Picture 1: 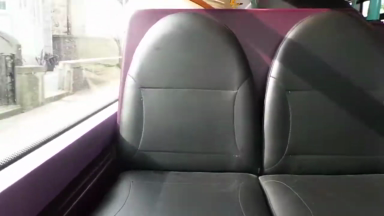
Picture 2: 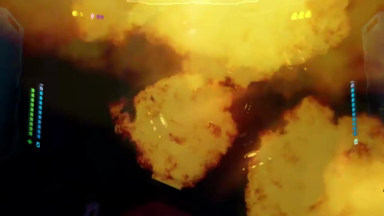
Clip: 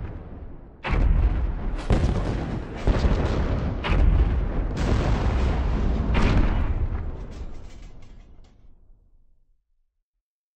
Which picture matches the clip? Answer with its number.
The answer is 2